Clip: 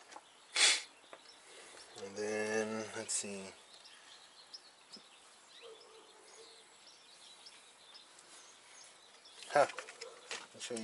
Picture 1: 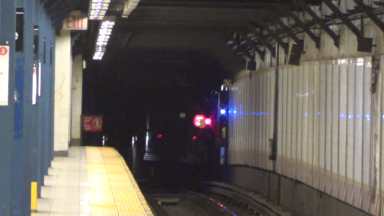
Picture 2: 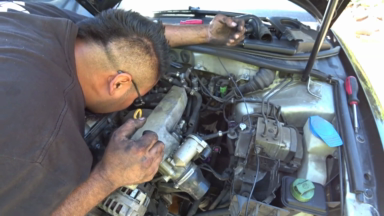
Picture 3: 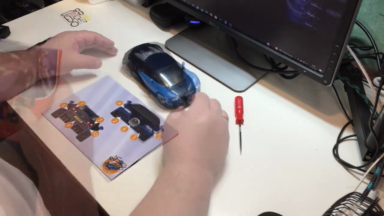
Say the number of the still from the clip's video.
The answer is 2